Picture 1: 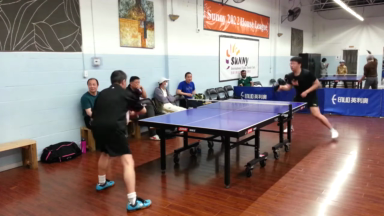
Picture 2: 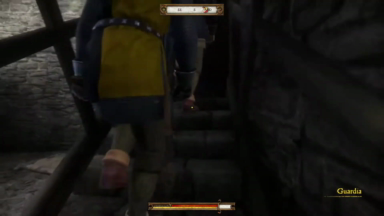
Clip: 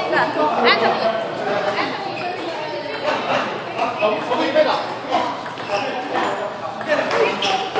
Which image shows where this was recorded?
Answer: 1